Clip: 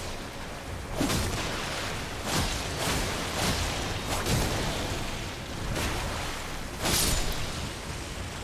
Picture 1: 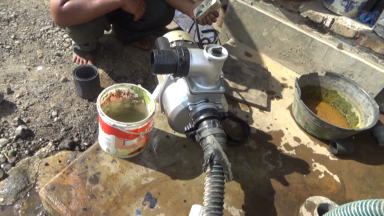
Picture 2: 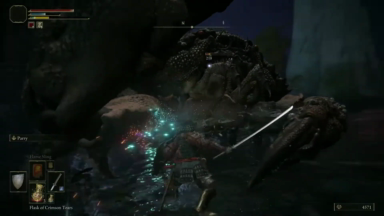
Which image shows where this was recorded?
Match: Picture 2